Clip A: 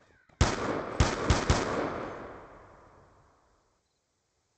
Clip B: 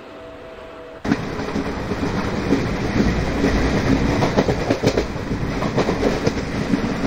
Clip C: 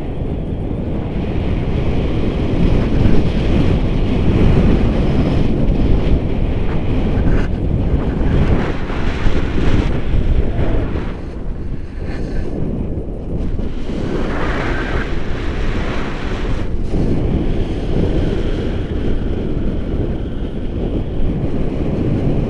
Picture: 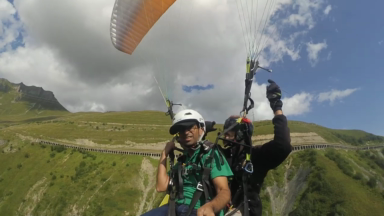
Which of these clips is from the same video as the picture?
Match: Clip C